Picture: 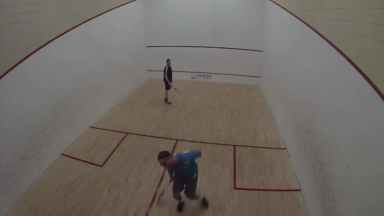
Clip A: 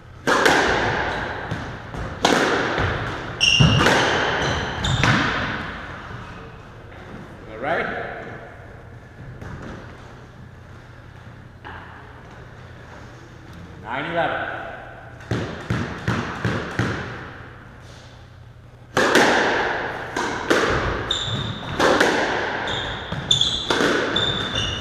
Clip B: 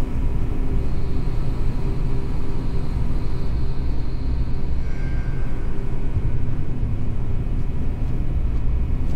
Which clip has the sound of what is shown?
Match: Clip A